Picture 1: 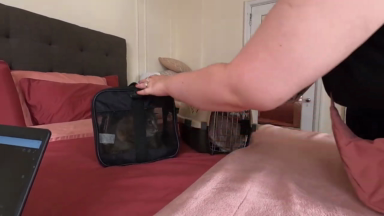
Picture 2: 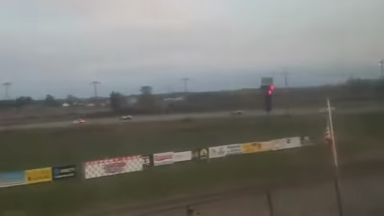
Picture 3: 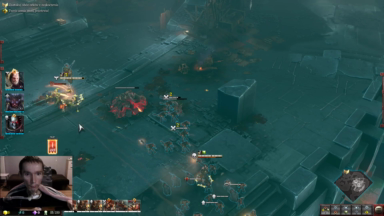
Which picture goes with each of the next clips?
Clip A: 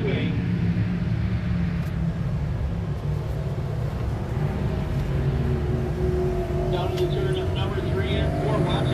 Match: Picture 2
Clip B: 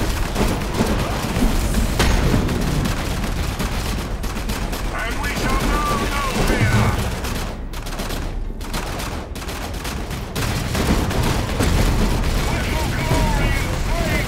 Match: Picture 3